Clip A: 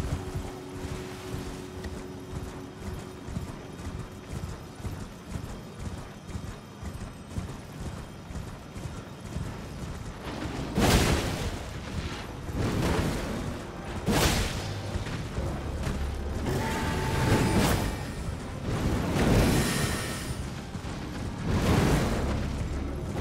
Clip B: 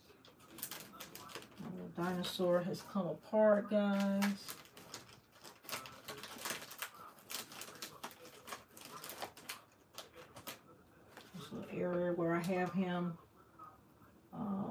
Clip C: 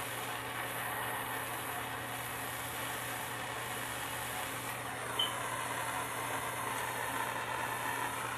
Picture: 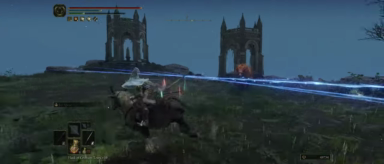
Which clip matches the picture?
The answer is A